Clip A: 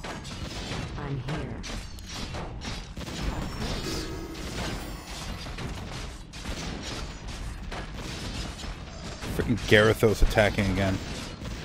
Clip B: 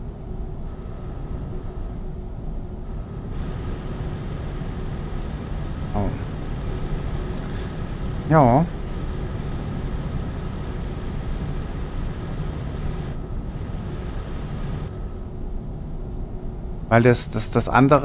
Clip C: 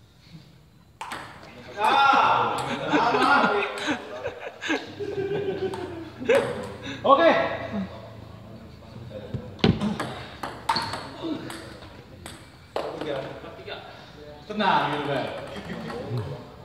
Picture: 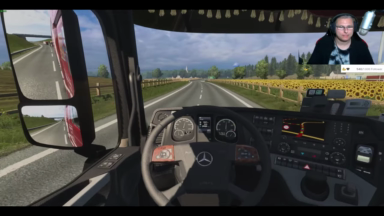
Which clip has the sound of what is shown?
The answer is B